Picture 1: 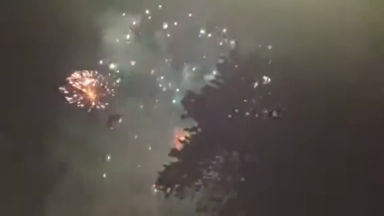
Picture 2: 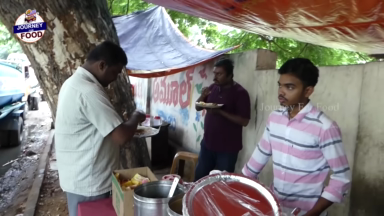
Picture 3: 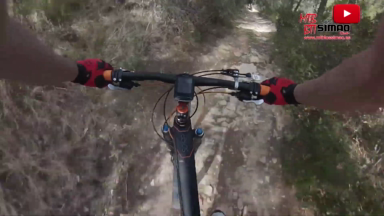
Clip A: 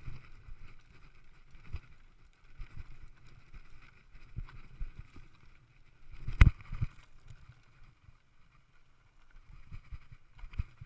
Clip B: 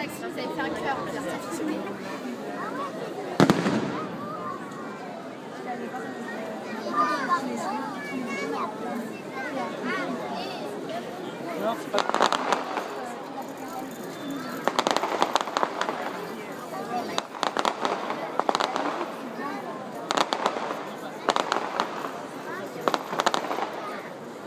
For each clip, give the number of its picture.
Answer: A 3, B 1